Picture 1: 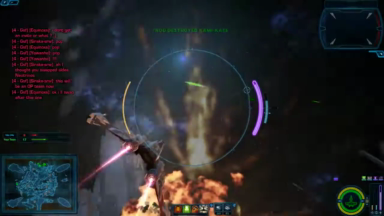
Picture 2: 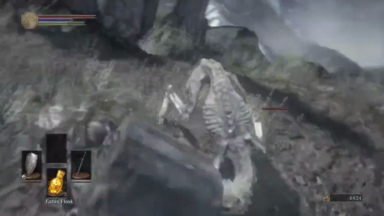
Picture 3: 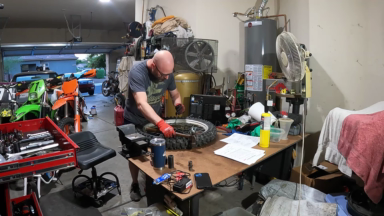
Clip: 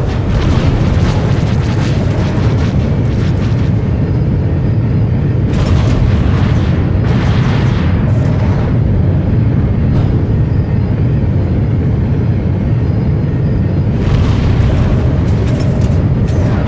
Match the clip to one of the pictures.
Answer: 1